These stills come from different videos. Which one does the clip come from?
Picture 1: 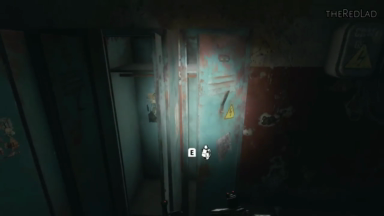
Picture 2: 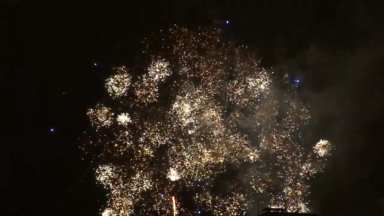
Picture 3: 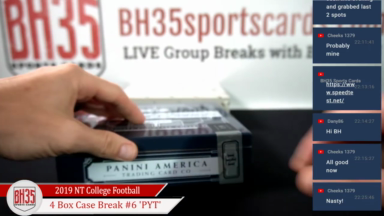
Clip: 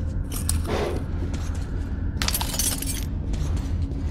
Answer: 1